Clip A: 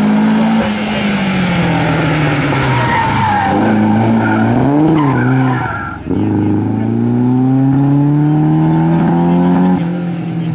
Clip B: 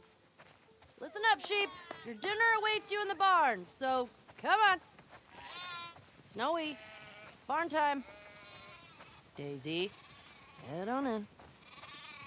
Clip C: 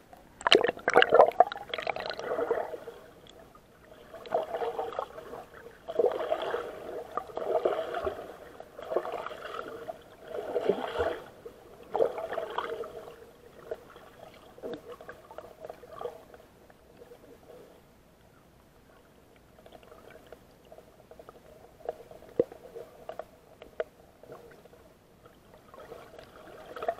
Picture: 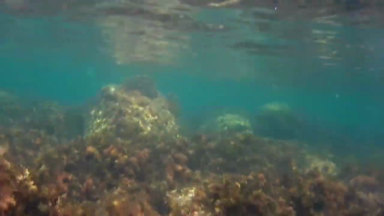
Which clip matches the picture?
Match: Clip C